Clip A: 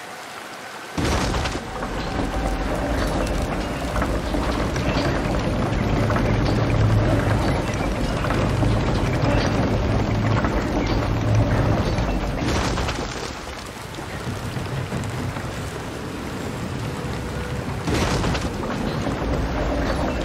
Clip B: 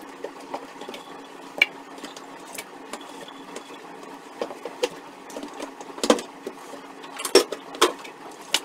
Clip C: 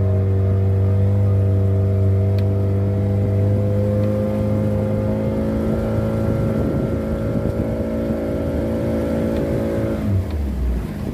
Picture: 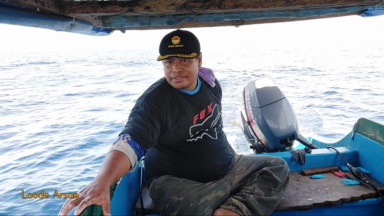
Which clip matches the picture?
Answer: C